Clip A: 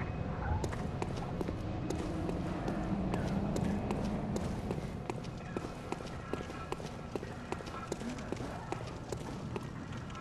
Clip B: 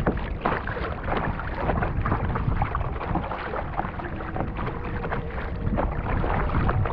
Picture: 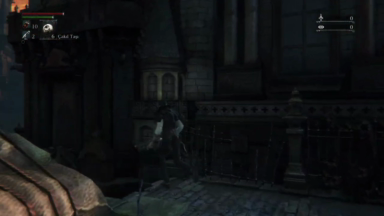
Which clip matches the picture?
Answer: A